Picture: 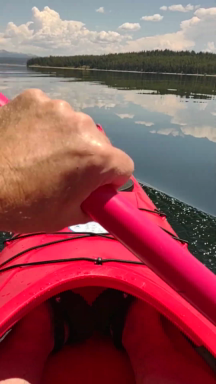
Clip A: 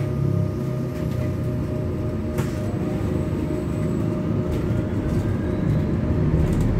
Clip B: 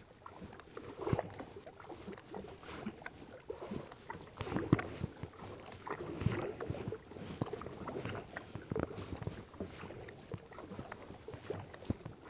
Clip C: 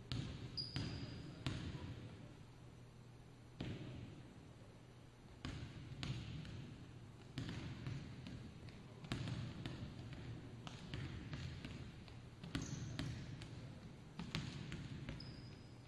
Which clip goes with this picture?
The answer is B